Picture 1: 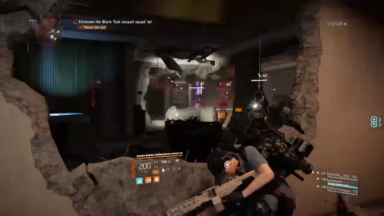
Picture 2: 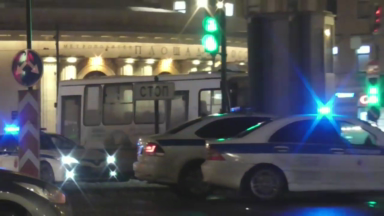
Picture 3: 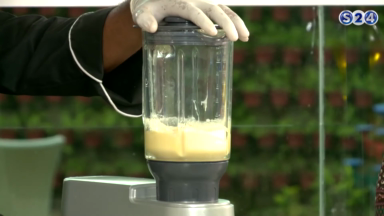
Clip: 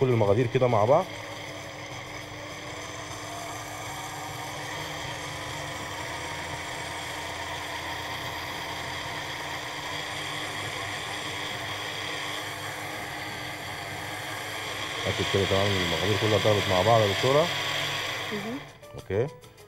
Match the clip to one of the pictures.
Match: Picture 3